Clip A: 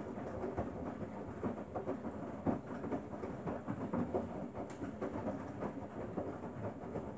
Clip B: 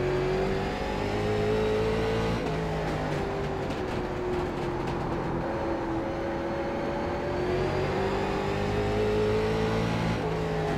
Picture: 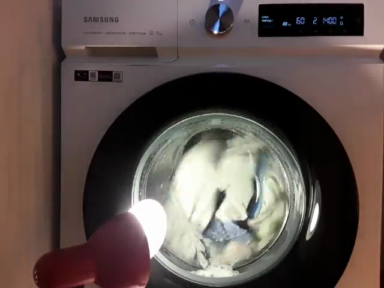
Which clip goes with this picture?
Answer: A